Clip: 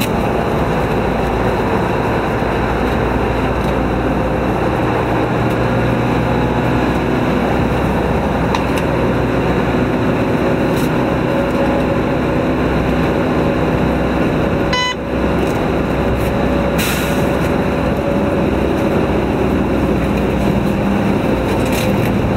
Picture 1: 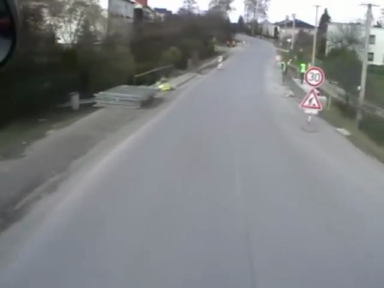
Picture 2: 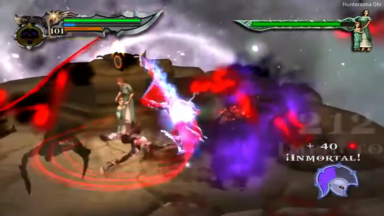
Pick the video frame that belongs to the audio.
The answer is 1